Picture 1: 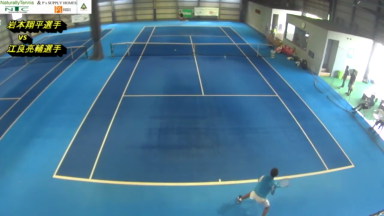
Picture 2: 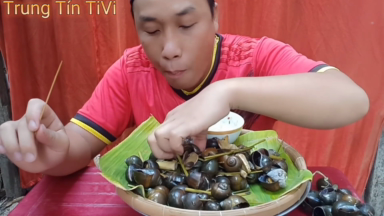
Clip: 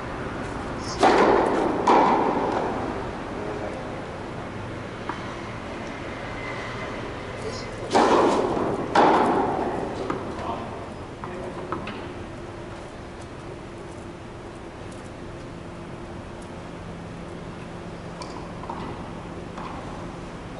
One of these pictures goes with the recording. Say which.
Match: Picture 1